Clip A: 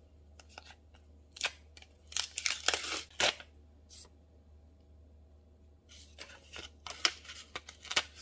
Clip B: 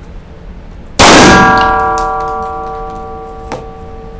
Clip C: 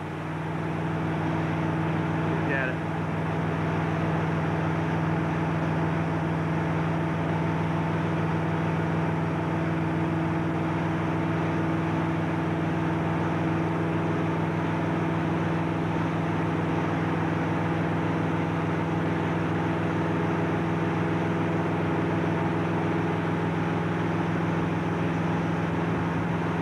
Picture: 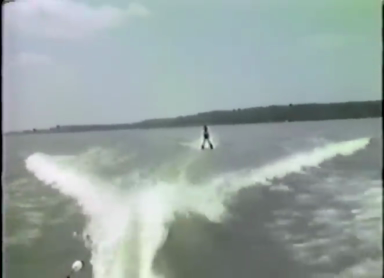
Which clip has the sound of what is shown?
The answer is C